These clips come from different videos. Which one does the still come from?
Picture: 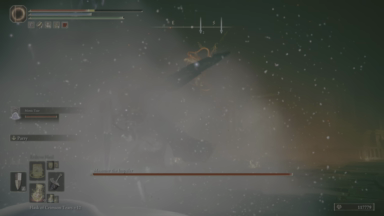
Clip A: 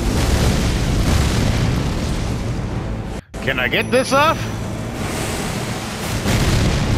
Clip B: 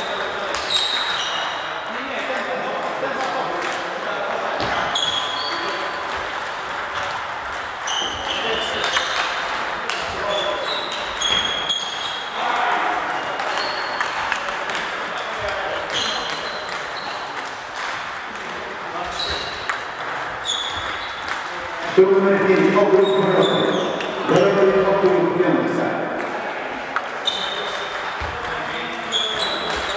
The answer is A